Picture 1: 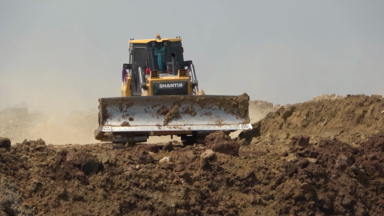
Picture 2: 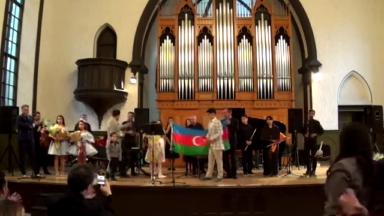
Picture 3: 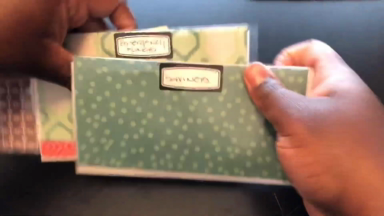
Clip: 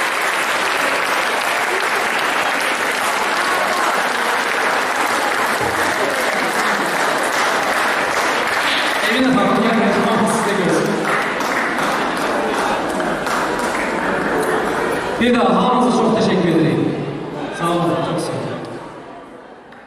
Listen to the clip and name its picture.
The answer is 2